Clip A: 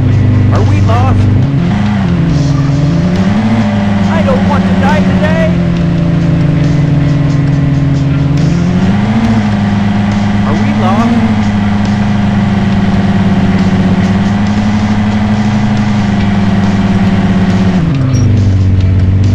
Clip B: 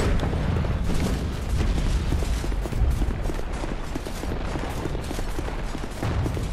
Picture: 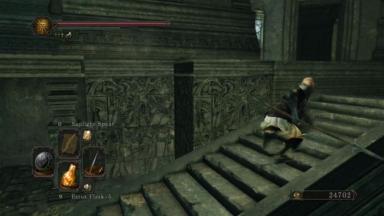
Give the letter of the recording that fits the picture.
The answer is B